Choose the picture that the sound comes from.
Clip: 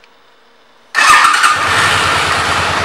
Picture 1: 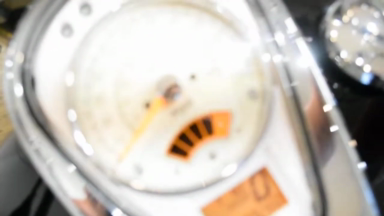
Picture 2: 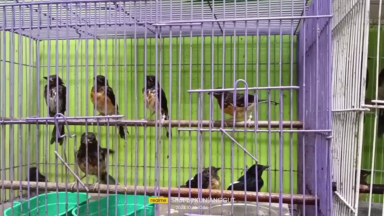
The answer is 1